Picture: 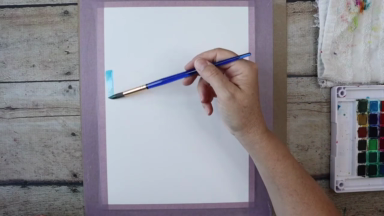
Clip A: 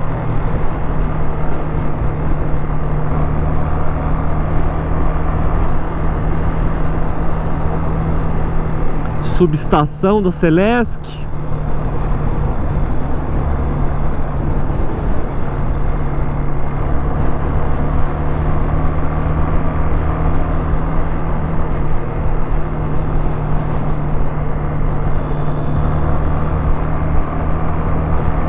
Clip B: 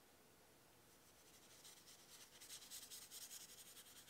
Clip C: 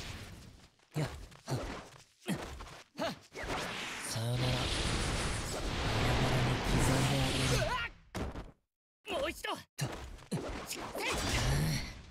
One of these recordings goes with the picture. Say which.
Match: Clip B